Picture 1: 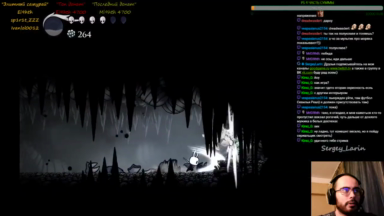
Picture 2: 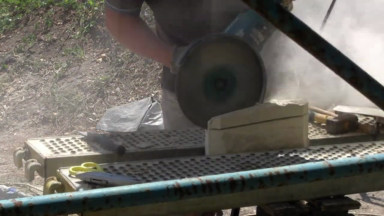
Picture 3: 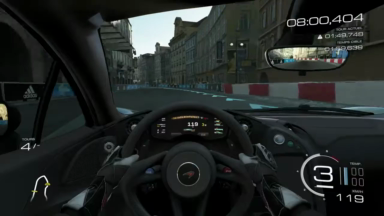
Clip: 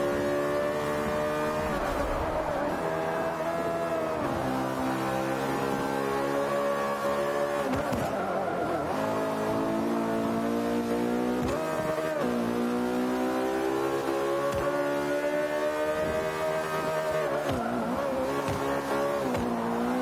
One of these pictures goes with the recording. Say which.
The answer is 3